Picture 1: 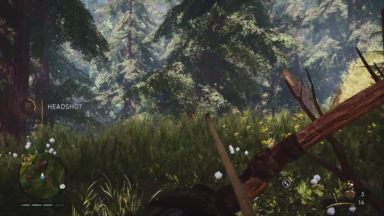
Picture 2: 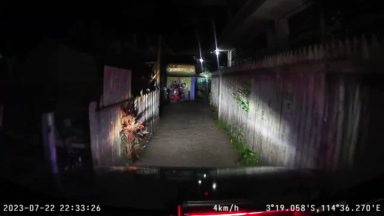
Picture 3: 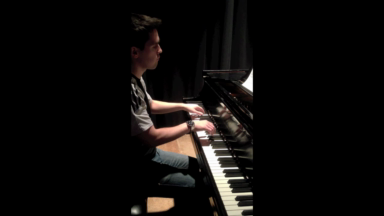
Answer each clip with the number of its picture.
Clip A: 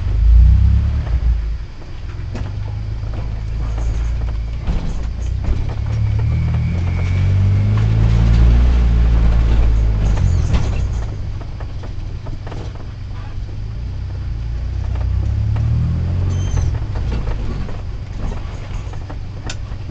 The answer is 2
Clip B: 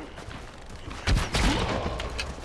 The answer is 1